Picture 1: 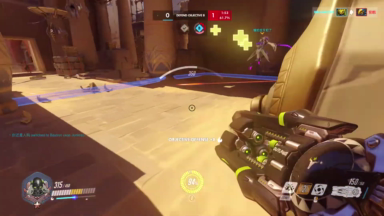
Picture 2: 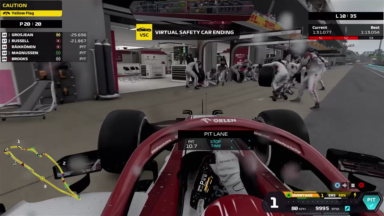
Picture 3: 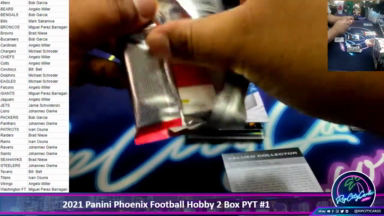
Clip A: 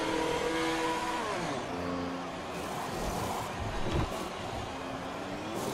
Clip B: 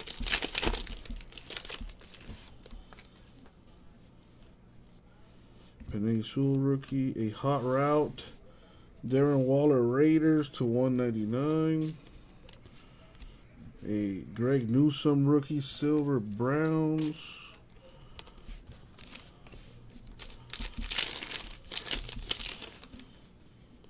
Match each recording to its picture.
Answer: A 2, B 3